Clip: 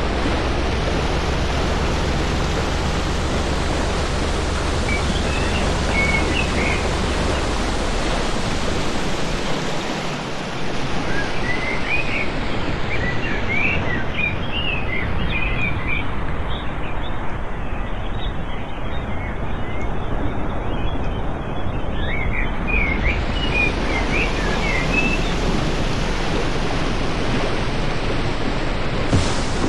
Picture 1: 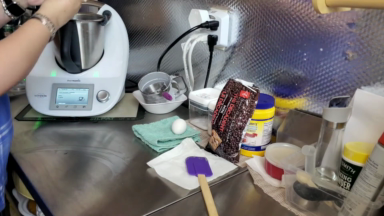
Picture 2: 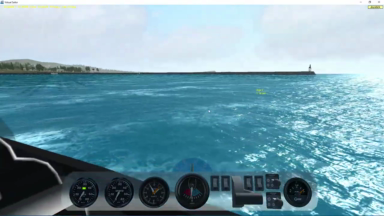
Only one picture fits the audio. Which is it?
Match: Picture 2